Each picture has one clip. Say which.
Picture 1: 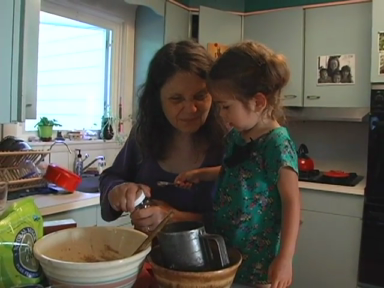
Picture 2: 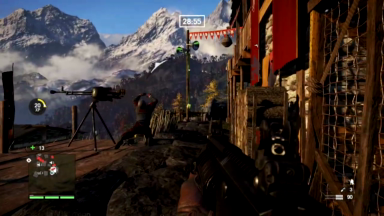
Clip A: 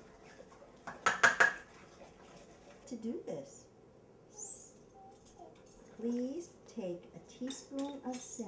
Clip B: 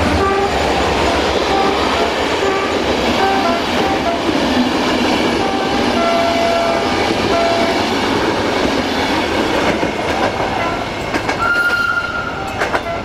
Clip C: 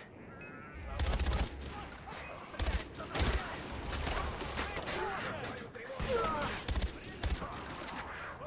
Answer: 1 A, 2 C